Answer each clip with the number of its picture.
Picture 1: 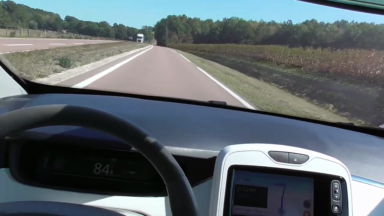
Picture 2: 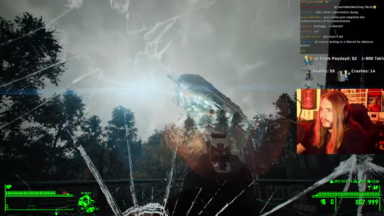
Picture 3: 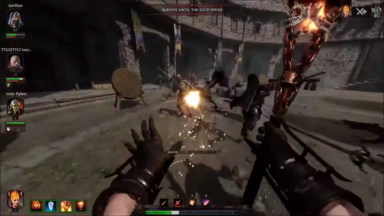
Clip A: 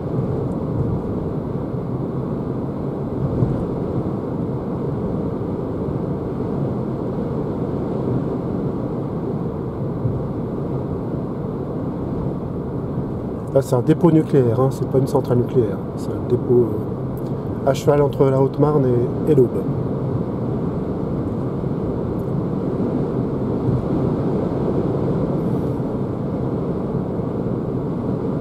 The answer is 1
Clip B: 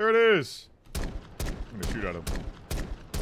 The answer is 2